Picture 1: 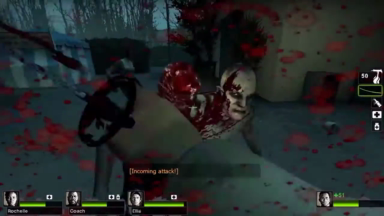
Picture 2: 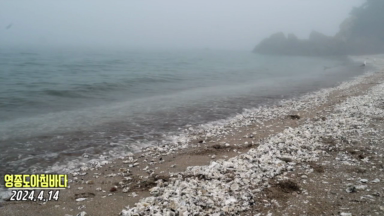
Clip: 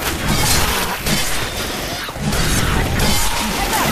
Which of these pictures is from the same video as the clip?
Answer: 1